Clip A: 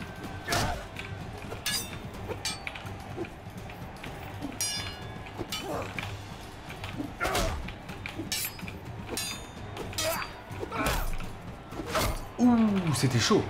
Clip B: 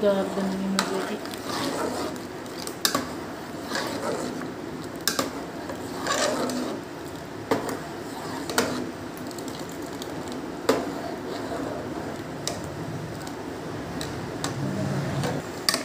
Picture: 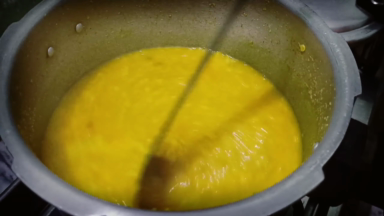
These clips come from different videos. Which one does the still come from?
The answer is B